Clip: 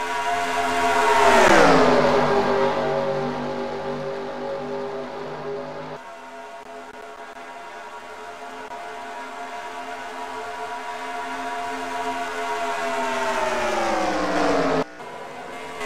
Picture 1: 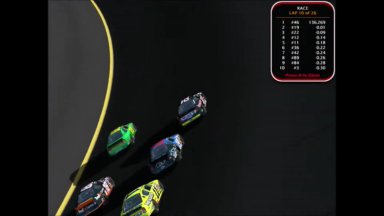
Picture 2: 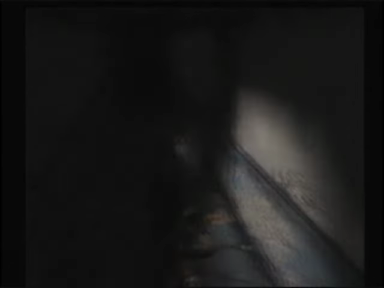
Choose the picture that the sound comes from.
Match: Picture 1